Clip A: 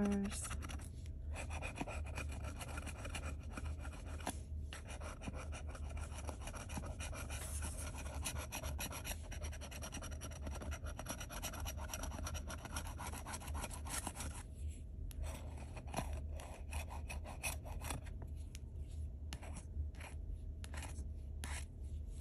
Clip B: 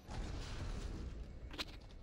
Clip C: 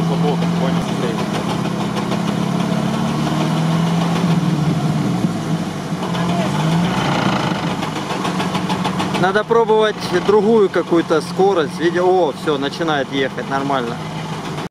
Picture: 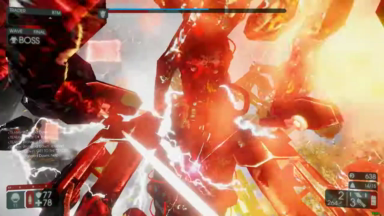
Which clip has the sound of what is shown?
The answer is B